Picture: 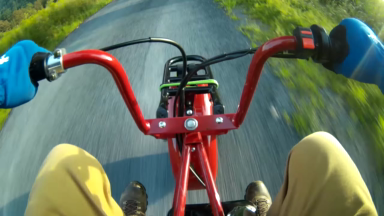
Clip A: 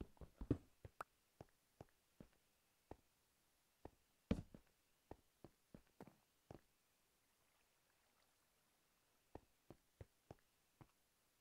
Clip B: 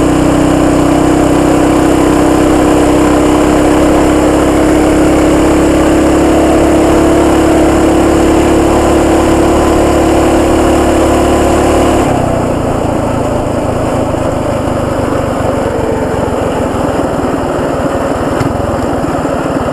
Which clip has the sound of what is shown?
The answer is B